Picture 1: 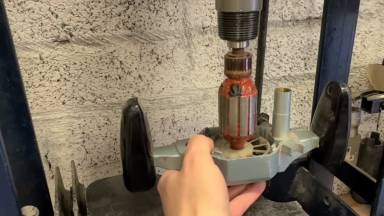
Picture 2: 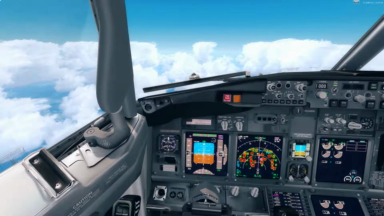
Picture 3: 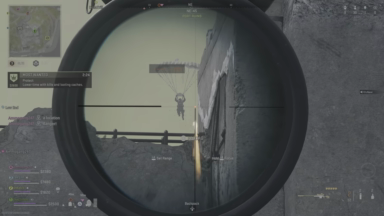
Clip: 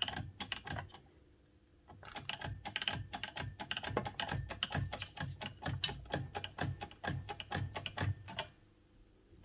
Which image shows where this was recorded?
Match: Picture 1